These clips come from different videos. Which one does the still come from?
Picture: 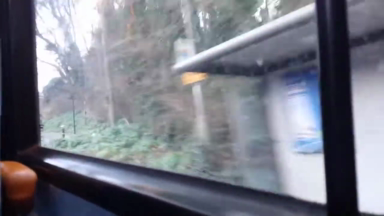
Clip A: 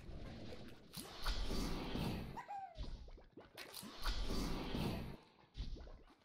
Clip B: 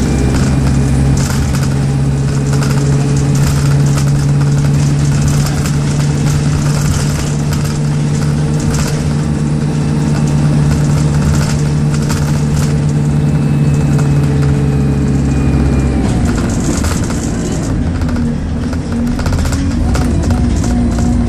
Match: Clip B